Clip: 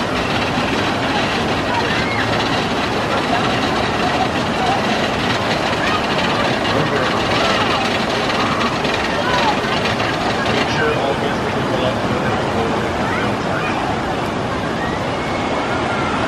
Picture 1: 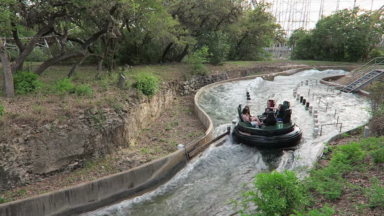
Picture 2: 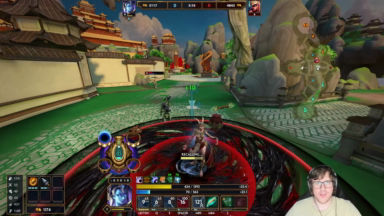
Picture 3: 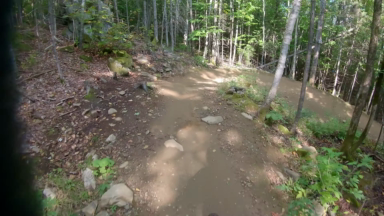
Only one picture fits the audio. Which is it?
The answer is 1